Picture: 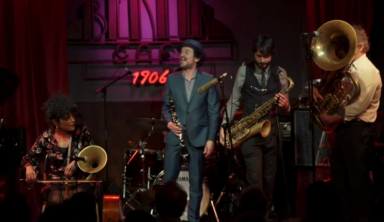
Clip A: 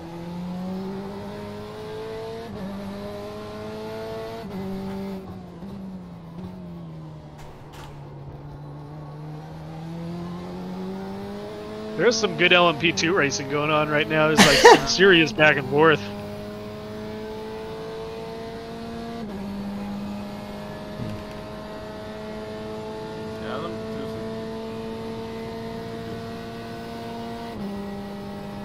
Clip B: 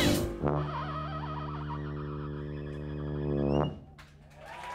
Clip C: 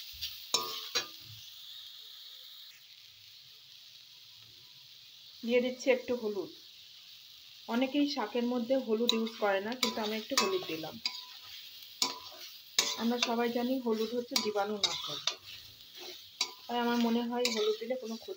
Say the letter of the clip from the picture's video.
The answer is B